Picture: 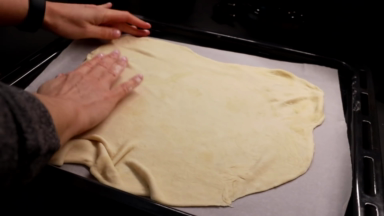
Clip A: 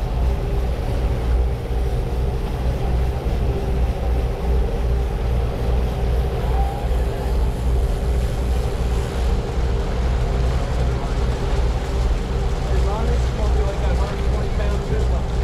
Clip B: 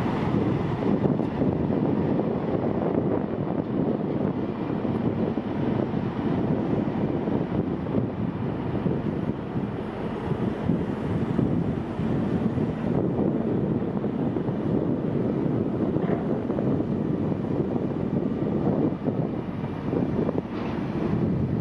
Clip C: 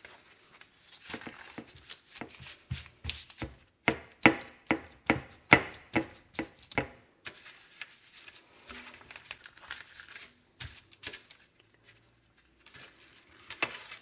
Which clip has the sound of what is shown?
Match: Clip C